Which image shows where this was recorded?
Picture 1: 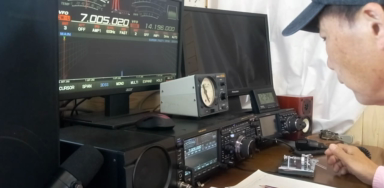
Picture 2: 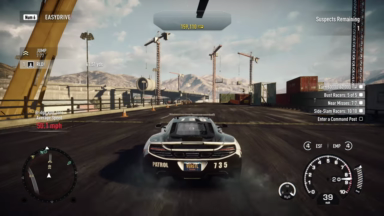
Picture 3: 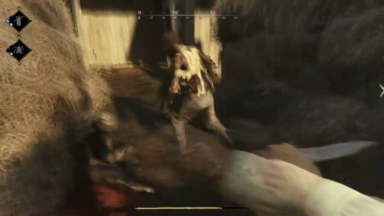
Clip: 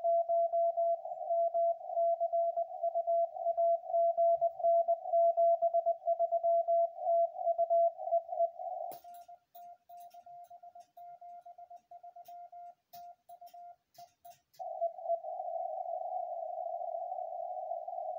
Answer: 1